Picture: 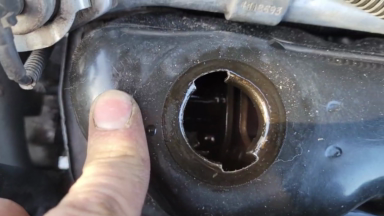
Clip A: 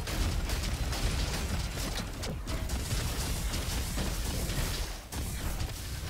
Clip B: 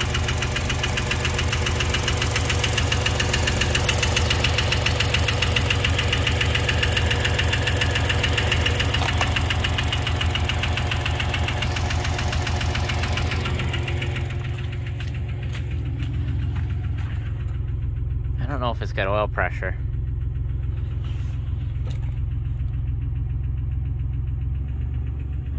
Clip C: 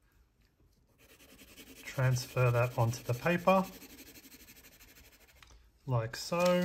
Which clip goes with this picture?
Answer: B